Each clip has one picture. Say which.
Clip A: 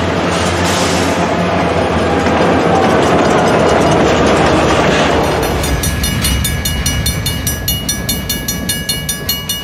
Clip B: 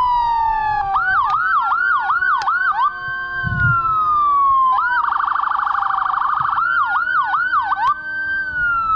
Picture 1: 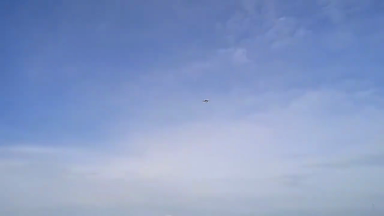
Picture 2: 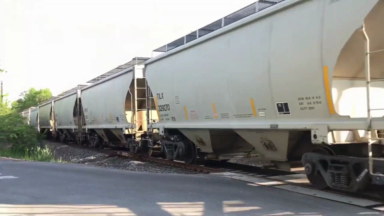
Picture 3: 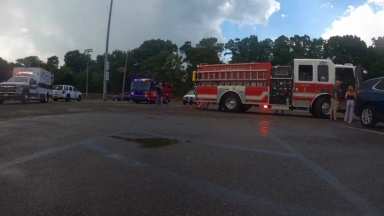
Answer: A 2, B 3